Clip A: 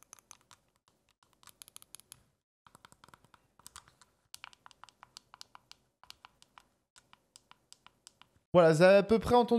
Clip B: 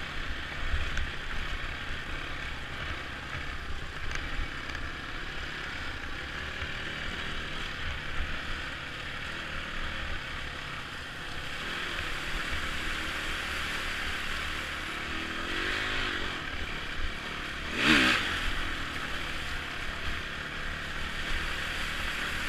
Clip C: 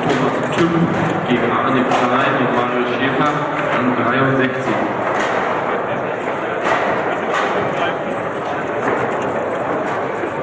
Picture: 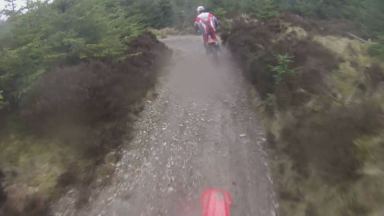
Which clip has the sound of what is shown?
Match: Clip B